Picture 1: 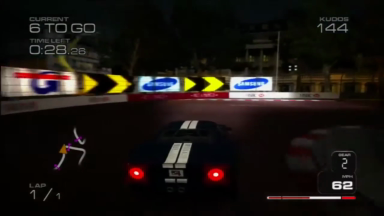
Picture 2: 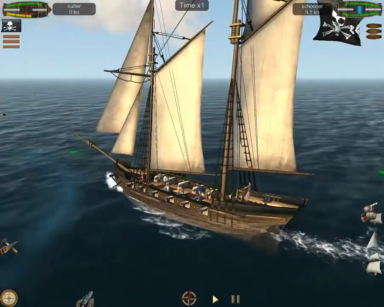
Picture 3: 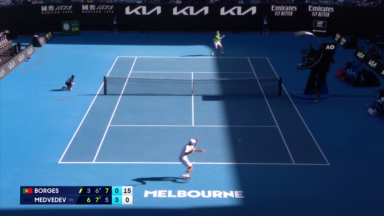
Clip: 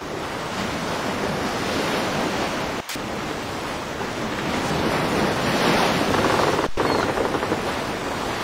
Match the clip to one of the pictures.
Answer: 2